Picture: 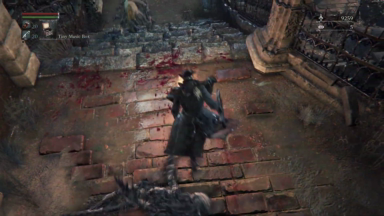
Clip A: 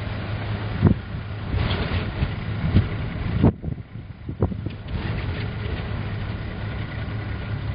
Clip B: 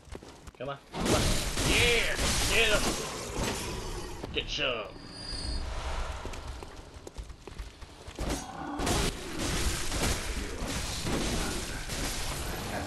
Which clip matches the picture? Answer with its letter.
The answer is B